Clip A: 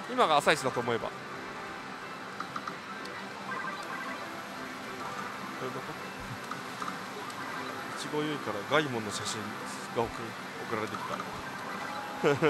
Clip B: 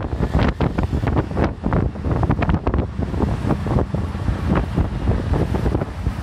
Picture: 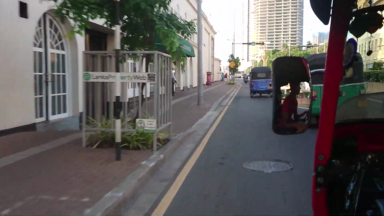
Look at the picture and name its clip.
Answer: B